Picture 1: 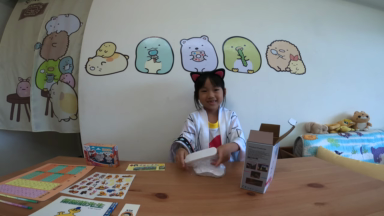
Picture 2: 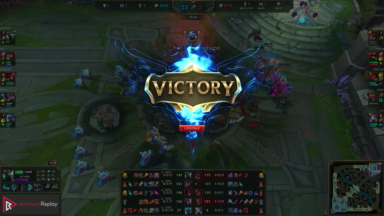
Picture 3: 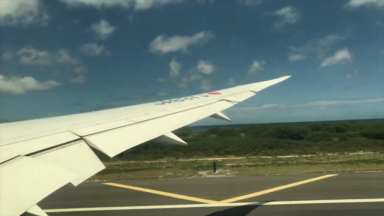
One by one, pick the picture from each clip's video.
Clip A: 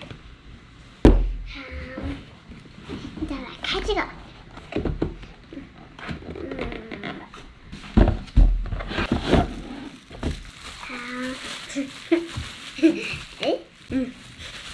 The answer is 1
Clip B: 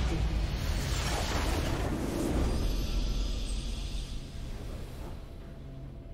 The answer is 2